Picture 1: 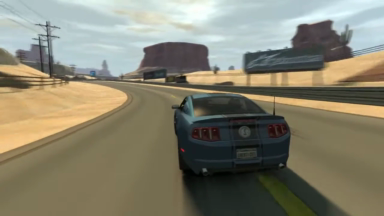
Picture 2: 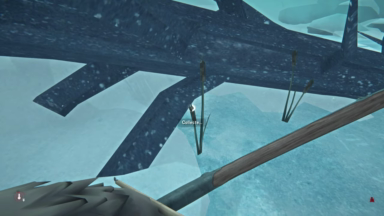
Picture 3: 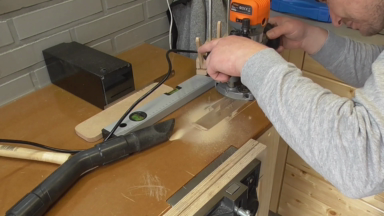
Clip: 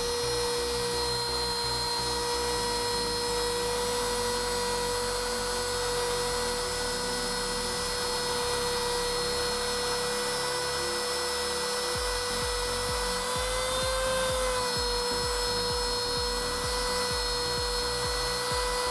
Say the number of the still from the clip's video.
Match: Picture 3